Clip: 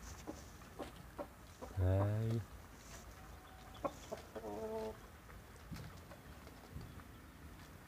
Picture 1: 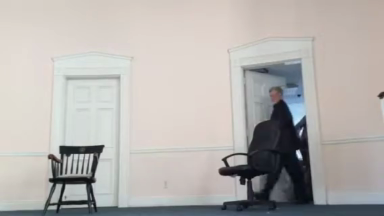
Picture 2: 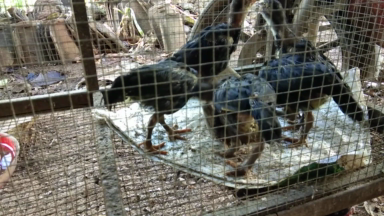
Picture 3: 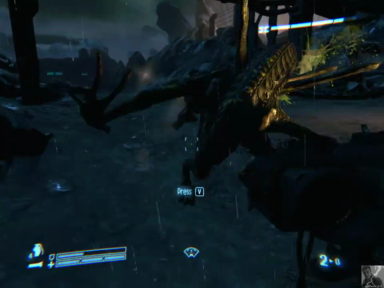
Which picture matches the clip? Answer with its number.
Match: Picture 2